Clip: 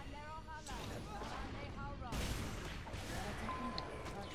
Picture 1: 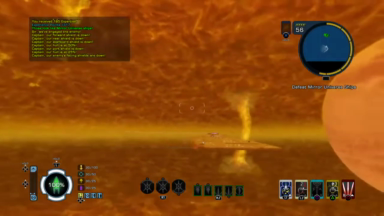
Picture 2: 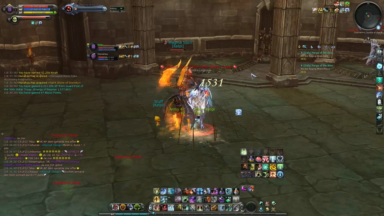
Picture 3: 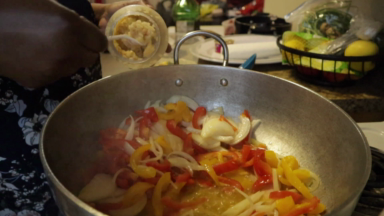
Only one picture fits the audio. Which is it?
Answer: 2